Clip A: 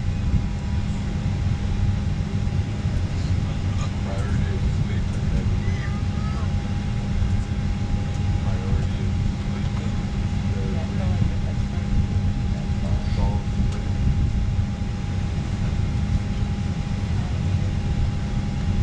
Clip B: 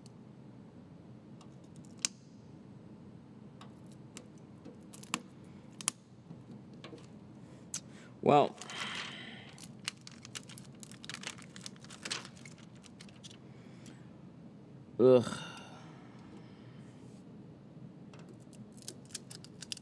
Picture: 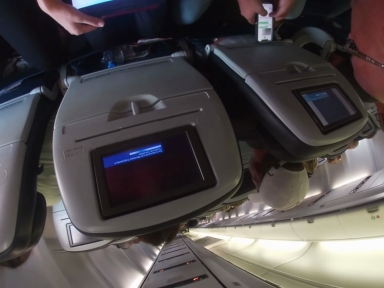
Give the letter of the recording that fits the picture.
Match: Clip A